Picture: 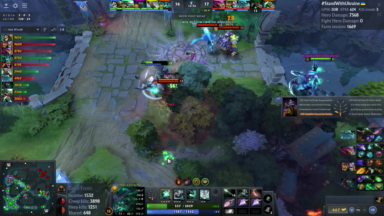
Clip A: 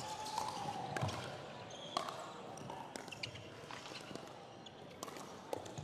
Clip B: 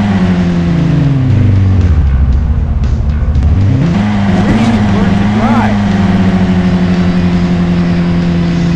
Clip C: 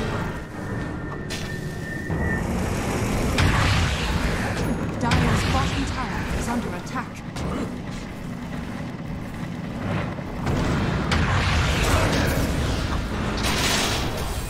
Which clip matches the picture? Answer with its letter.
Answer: C